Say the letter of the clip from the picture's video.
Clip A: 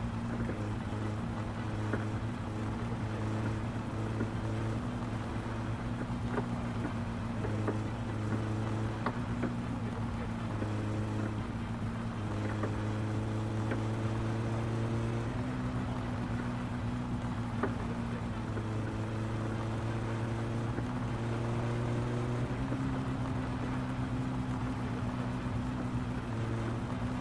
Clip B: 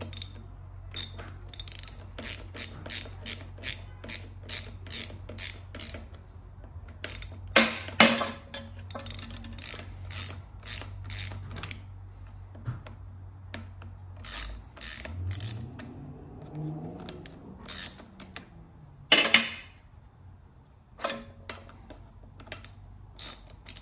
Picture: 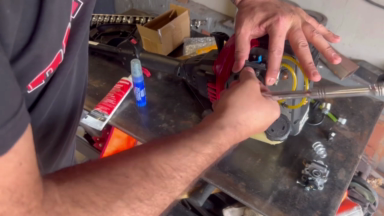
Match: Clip B